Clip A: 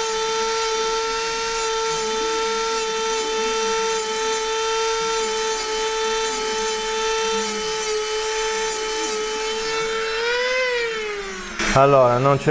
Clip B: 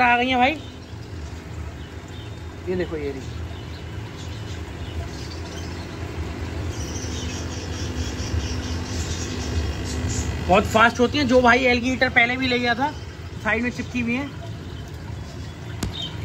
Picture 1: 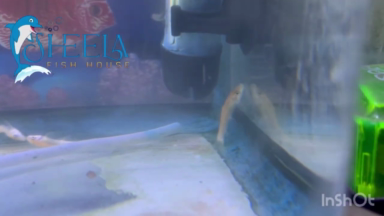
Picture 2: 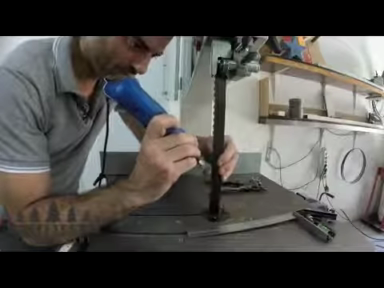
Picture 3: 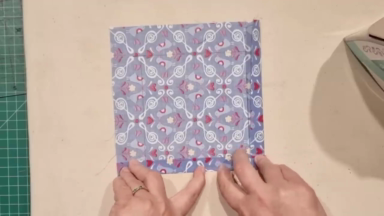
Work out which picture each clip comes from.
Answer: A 2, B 1